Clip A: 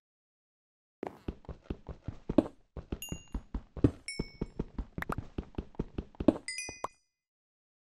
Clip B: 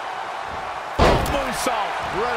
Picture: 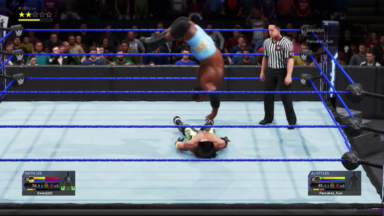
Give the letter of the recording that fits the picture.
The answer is B